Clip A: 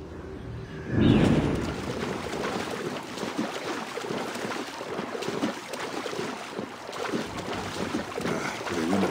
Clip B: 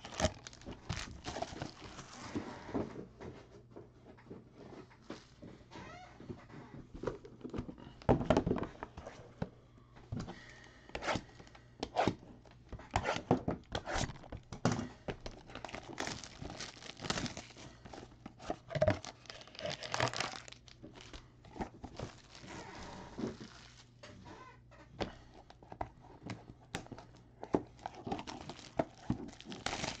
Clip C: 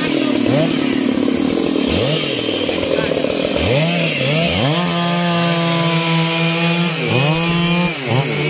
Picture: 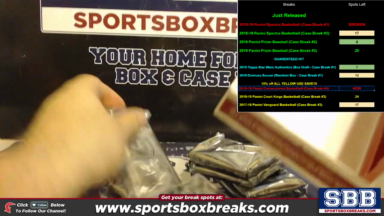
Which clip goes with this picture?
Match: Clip B